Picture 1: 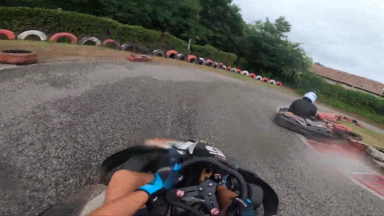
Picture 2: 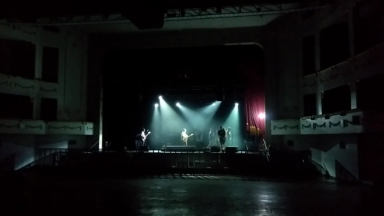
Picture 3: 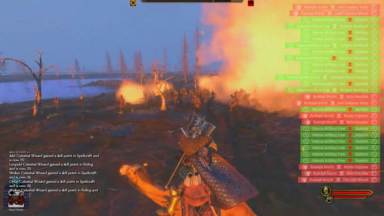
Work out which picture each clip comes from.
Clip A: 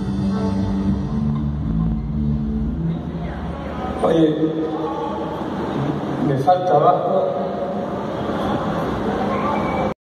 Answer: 2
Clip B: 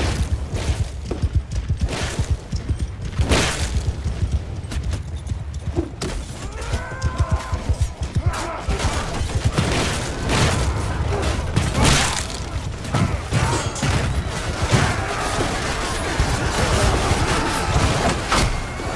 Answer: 3